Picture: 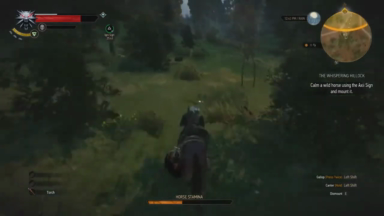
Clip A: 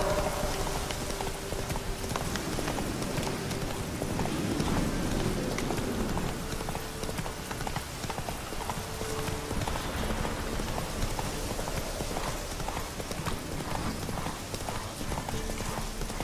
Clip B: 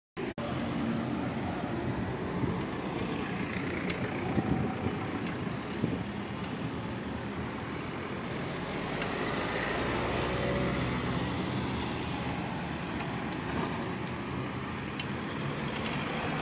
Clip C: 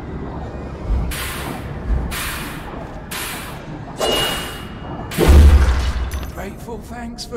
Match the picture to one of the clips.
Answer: A